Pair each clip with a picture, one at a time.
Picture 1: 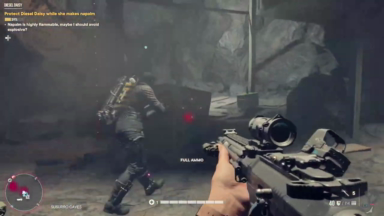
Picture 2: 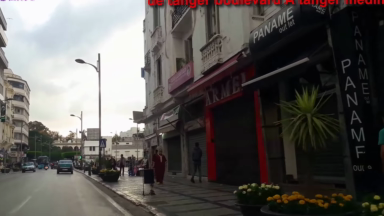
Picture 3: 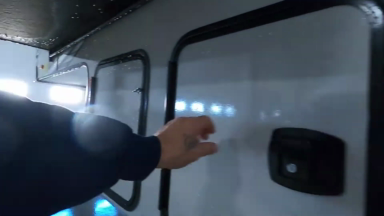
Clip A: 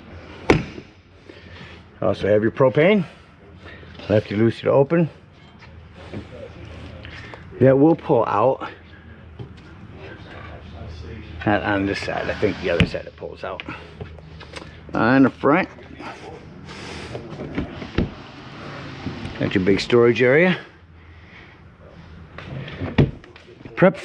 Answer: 3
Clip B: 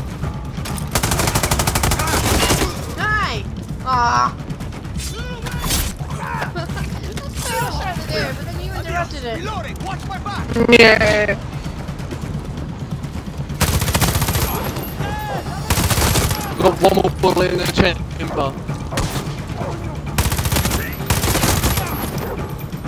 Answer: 1